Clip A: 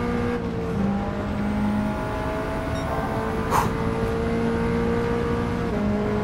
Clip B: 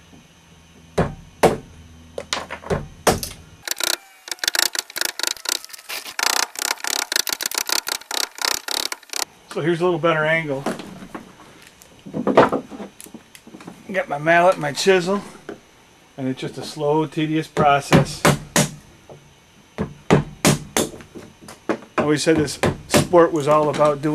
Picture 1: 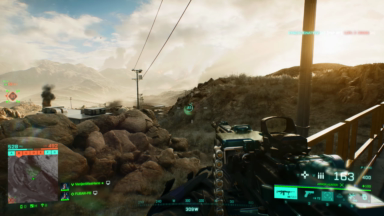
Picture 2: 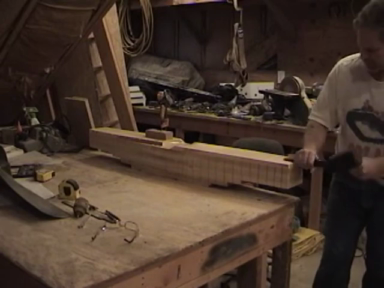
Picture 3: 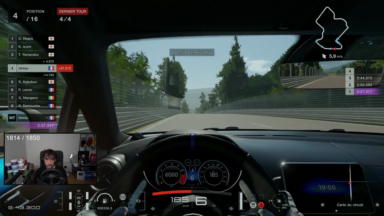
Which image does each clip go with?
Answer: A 3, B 2